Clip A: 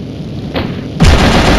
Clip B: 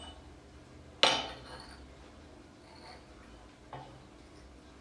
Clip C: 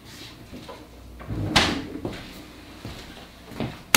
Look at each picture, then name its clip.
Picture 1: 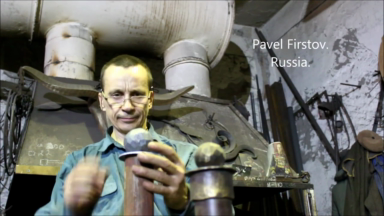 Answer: B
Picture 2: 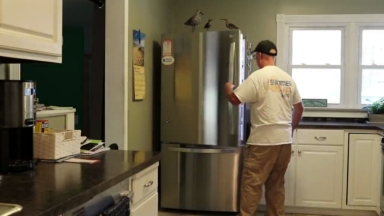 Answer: C